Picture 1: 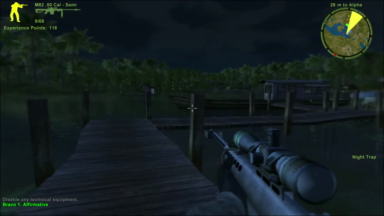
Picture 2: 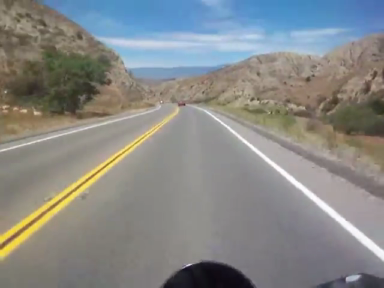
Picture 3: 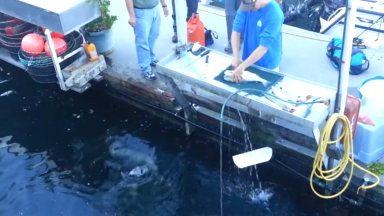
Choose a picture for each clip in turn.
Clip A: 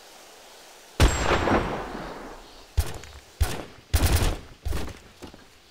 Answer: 1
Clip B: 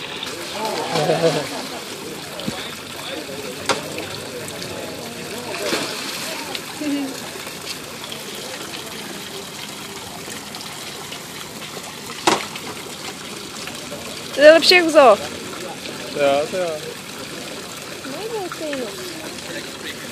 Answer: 3